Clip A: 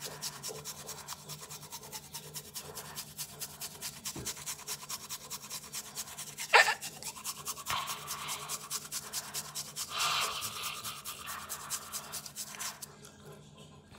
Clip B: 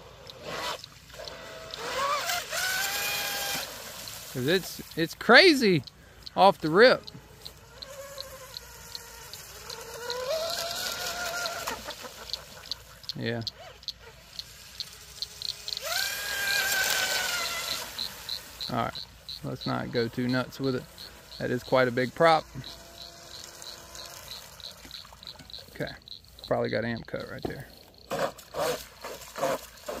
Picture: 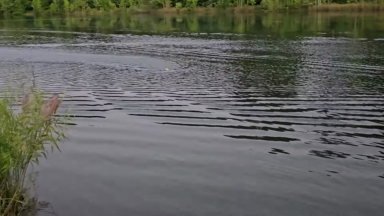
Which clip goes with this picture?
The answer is B